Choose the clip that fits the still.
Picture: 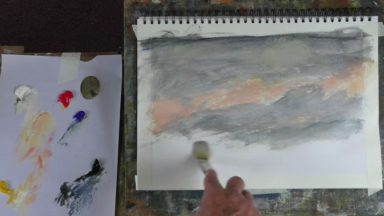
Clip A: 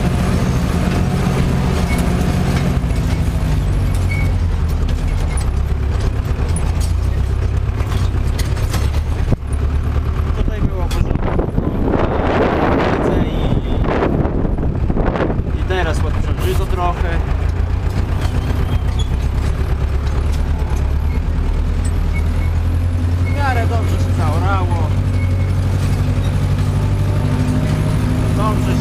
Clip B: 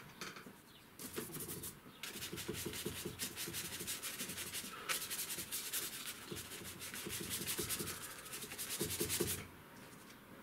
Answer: B